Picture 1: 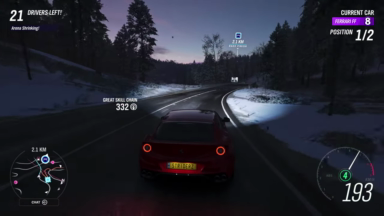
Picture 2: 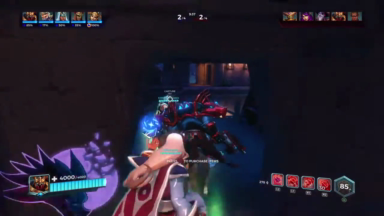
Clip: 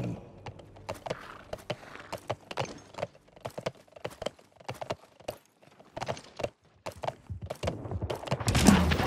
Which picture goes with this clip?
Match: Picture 2